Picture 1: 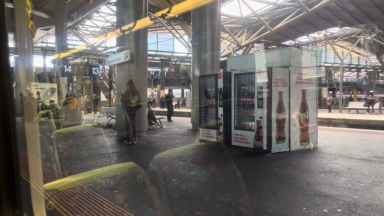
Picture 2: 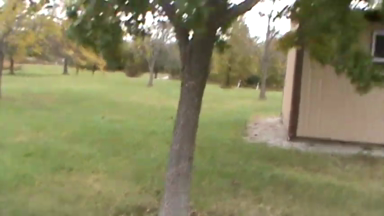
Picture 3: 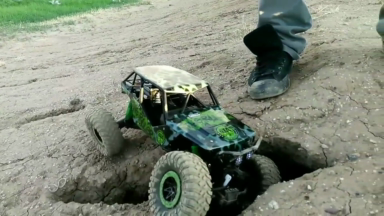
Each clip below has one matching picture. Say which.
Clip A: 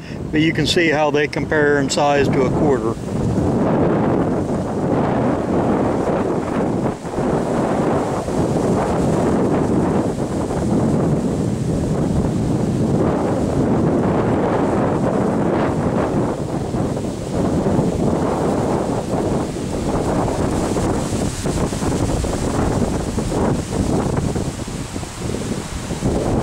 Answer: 2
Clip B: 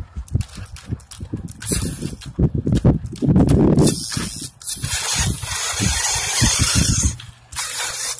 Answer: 3